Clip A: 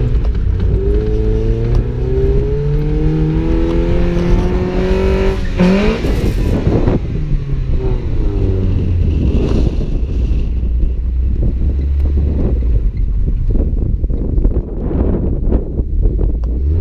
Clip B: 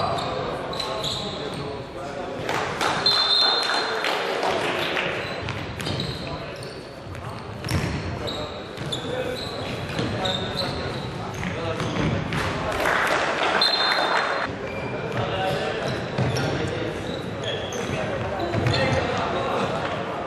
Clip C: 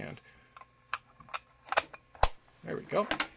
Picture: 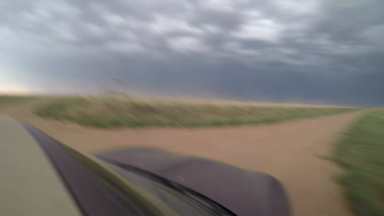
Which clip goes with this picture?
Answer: A